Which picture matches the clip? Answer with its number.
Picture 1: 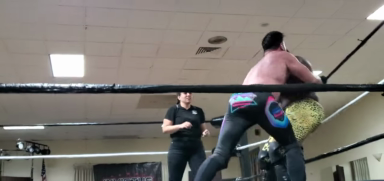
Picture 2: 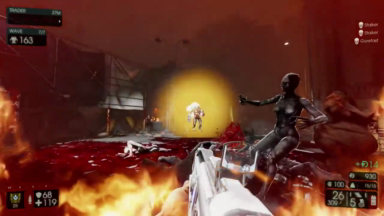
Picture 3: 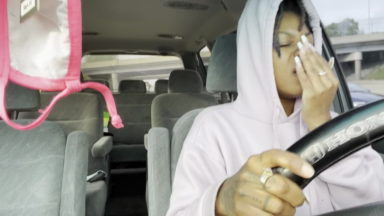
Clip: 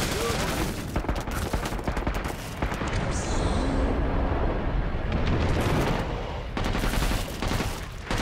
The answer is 2